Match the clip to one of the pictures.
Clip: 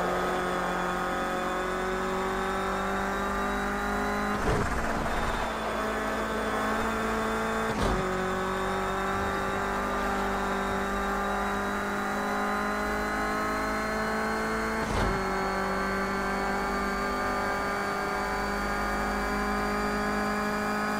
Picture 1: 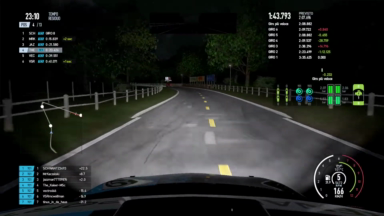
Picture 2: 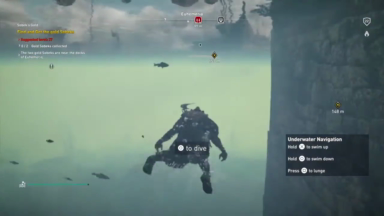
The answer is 1